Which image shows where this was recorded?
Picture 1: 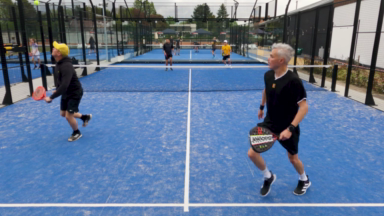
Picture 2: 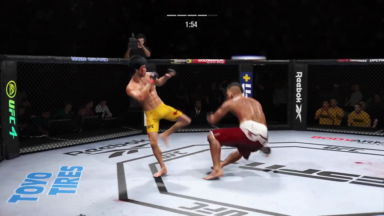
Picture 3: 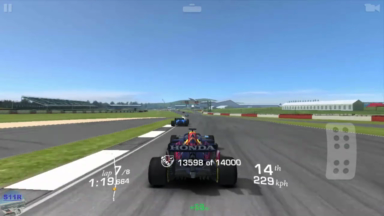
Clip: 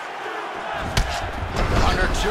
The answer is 2